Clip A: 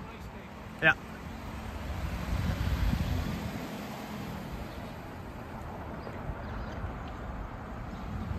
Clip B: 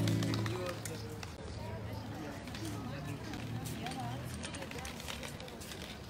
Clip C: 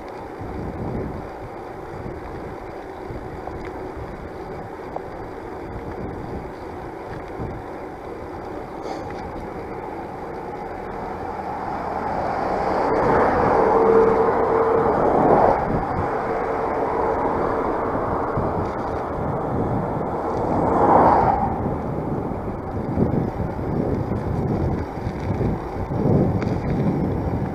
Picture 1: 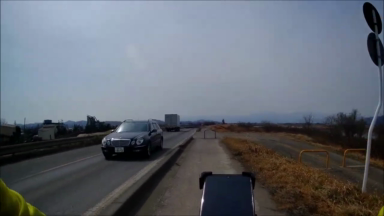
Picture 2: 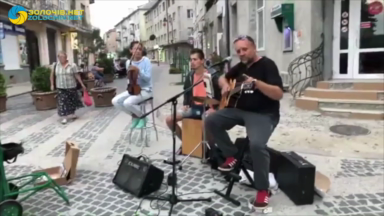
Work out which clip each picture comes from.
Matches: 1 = C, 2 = B